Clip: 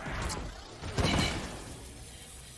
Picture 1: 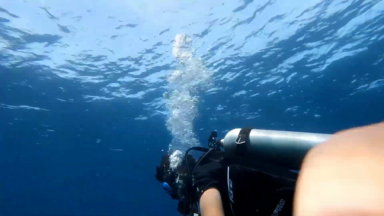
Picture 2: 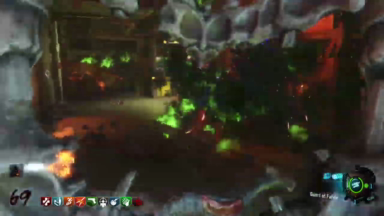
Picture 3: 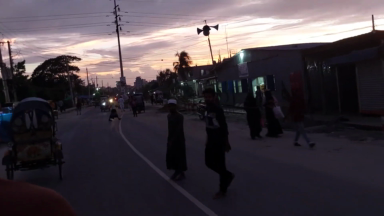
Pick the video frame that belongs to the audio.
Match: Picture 2